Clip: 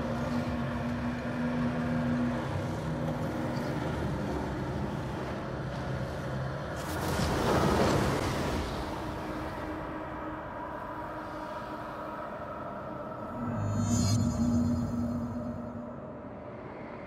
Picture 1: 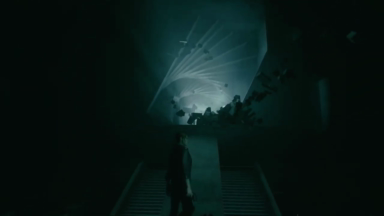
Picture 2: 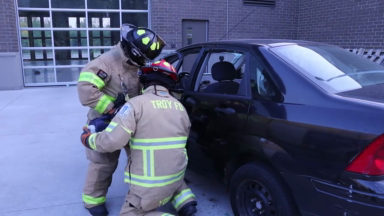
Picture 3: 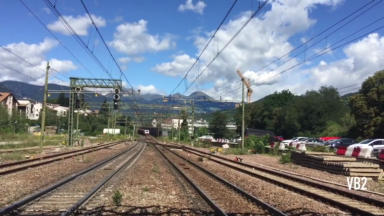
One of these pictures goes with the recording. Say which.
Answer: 1